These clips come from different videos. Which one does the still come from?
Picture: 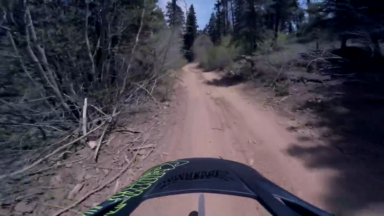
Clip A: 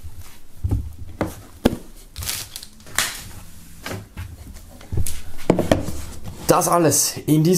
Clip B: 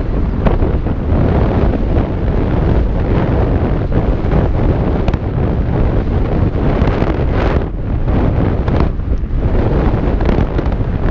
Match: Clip B